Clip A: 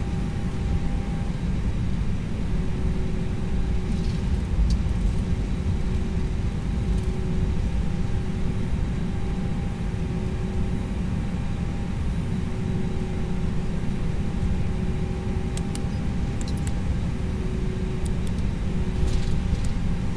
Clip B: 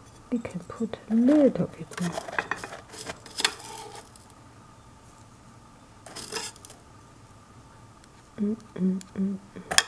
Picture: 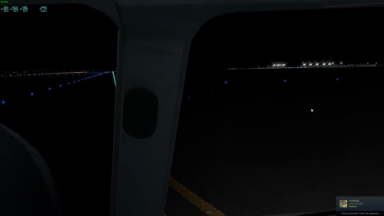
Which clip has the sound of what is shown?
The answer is A